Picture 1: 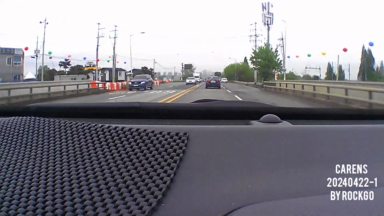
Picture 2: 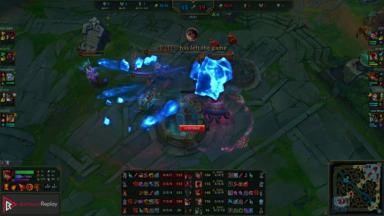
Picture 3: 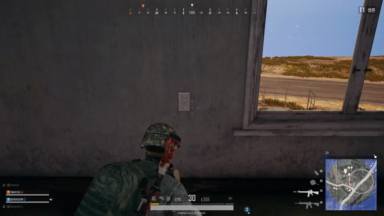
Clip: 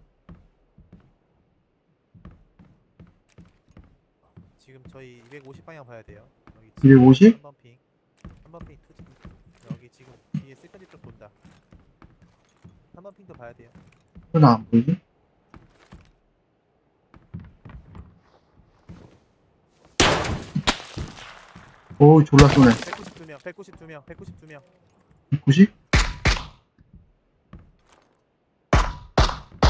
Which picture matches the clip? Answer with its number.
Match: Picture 3